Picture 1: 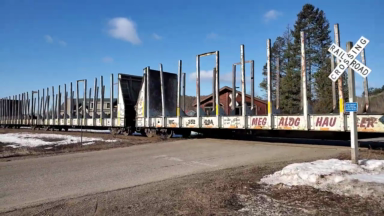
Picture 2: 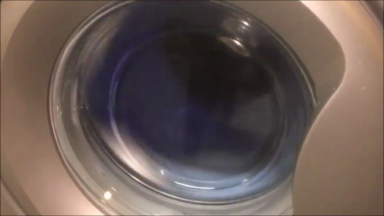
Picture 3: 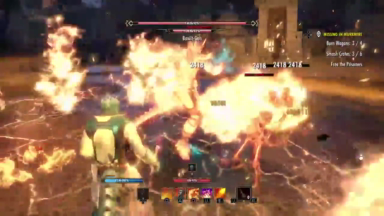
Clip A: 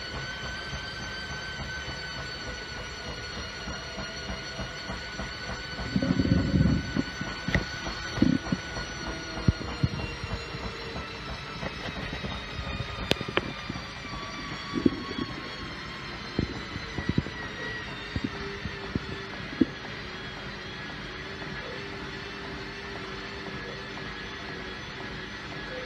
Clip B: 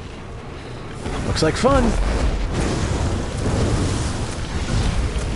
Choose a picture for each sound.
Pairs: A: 2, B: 3